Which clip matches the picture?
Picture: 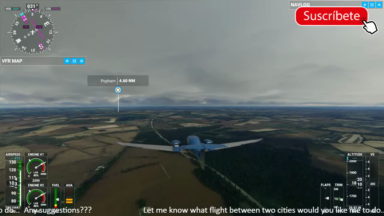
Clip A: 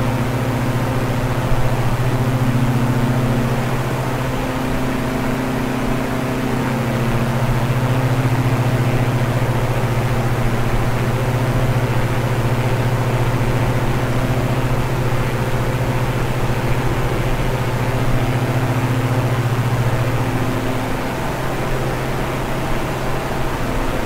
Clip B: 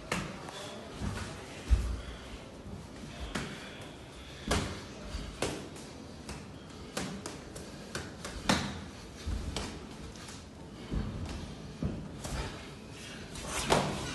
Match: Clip A